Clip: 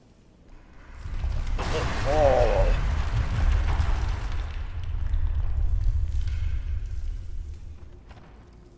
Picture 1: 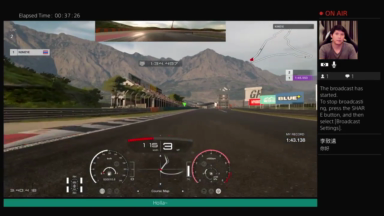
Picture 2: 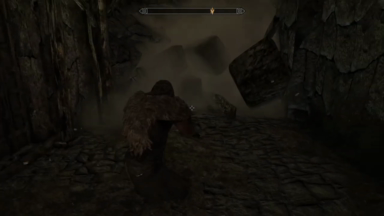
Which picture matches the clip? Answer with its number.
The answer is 2